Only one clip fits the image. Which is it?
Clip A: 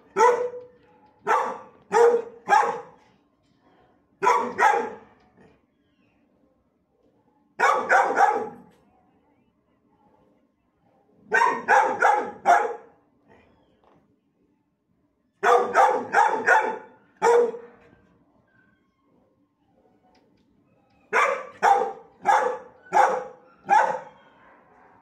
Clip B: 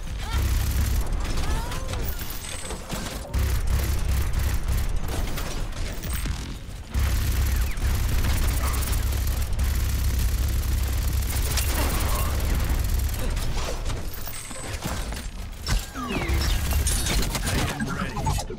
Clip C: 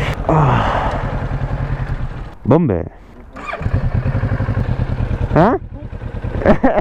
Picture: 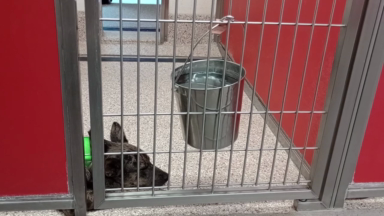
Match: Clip A